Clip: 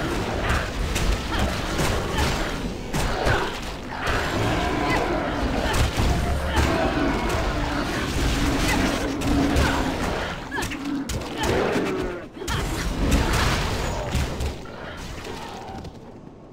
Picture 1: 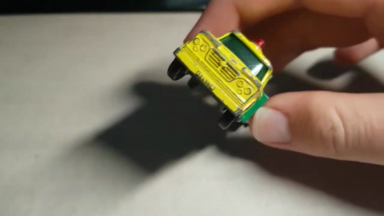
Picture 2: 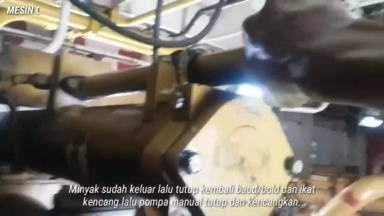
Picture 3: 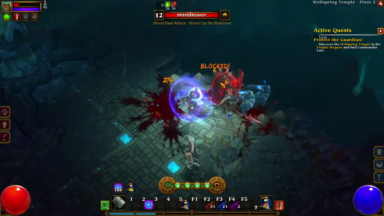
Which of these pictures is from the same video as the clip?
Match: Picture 3